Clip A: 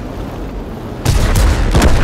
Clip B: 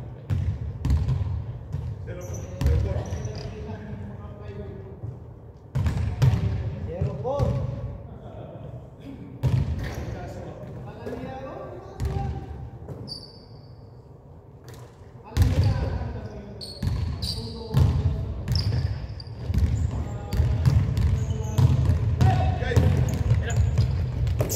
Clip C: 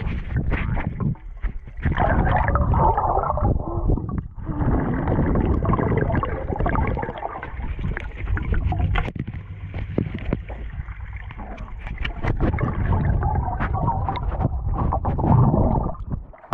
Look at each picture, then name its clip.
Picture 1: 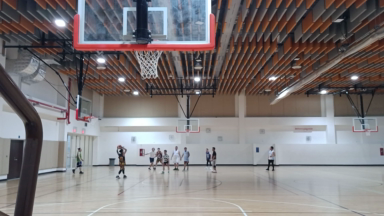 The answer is B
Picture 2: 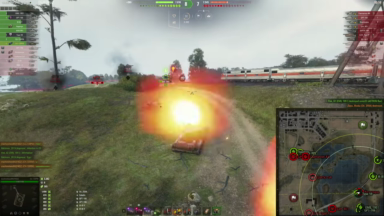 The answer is A